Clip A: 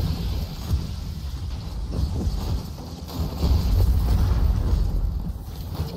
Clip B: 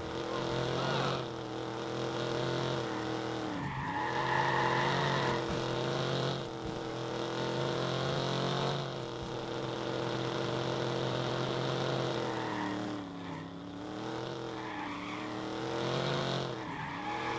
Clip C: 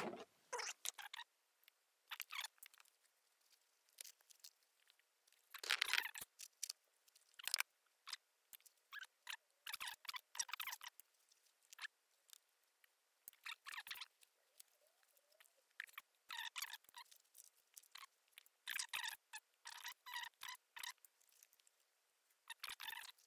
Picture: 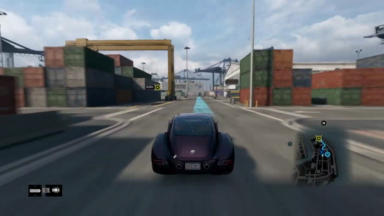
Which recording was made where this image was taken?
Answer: B